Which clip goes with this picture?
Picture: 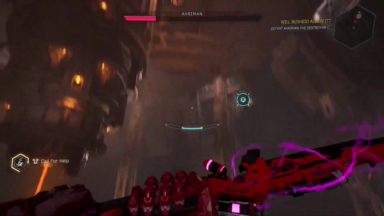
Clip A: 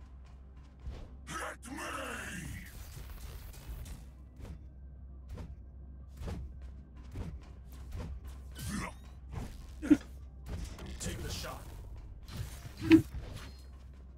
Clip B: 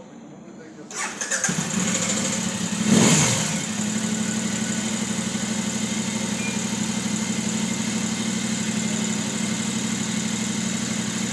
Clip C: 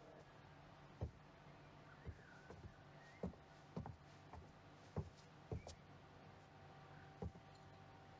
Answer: A